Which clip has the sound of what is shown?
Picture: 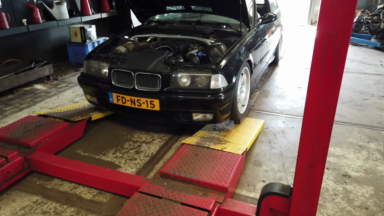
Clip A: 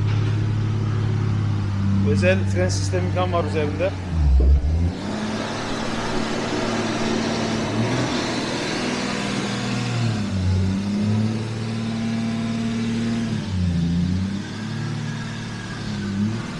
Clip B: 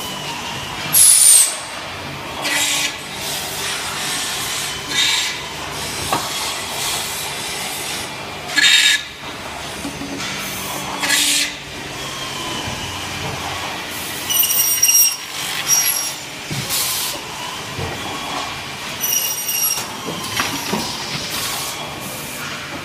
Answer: A